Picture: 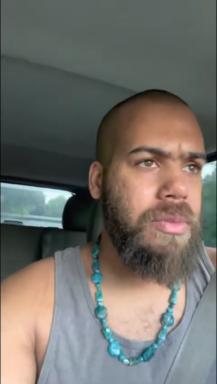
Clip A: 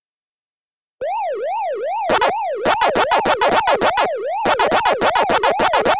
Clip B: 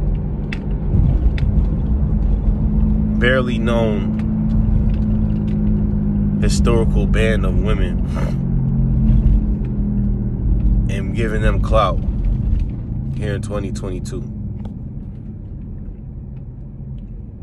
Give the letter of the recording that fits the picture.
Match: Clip B